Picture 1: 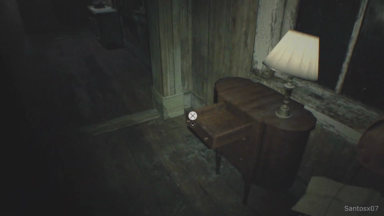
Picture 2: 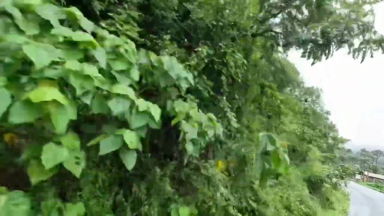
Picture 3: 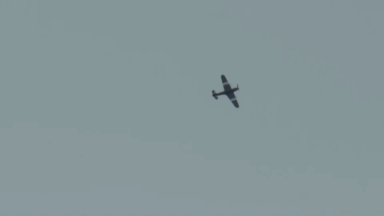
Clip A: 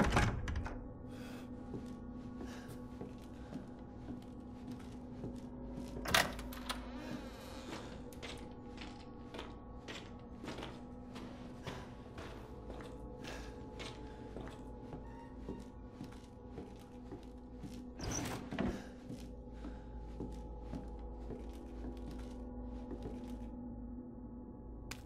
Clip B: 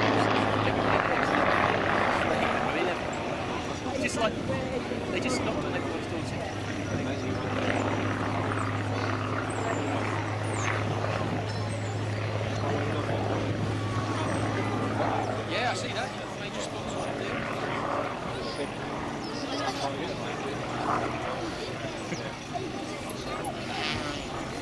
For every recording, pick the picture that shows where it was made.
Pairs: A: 1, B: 3